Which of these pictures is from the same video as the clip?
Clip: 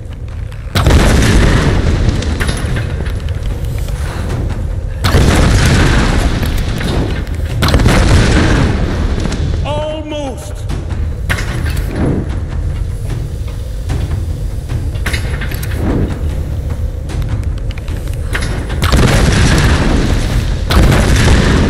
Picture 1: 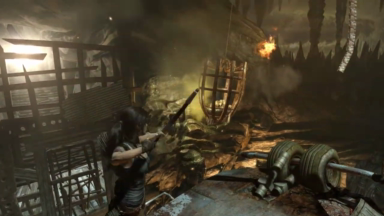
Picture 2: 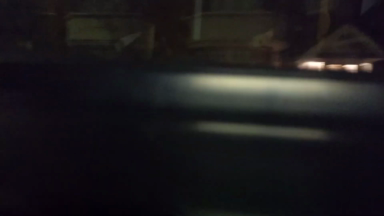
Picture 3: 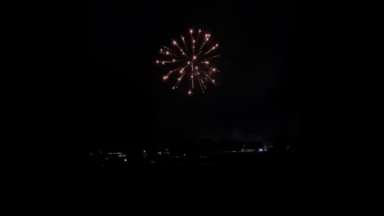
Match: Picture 1